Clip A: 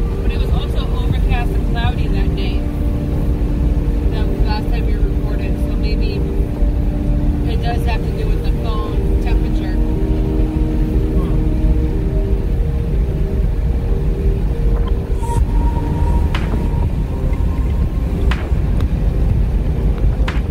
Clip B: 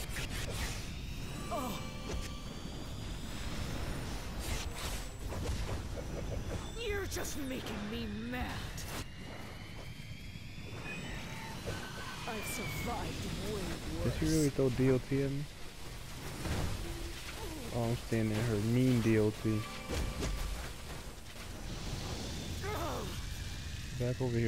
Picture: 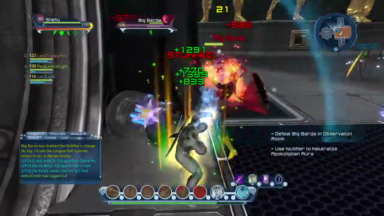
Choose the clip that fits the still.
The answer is B